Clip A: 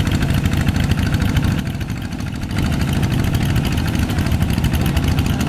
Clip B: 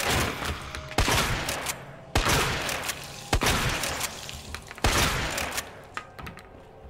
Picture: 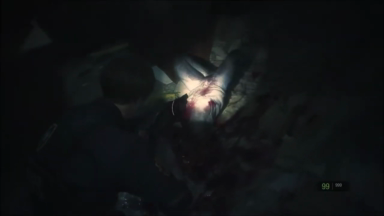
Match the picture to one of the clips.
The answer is B